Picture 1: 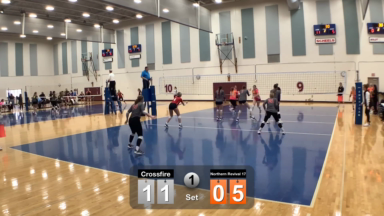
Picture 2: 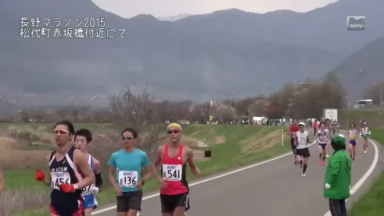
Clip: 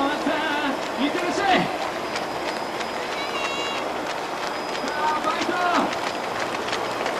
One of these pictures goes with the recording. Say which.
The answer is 2